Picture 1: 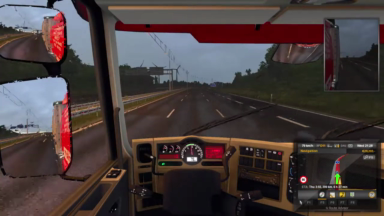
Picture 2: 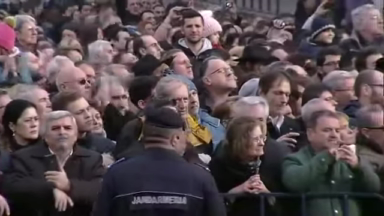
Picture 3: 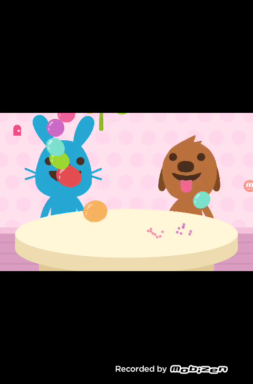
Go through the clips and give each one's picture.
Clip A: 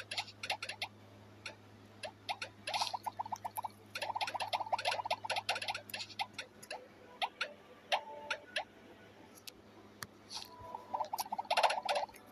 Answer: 3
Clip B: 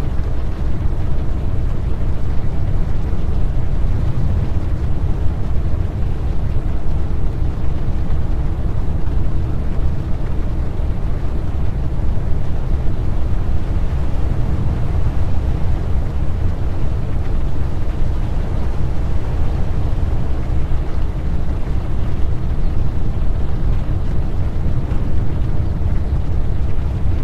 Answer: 1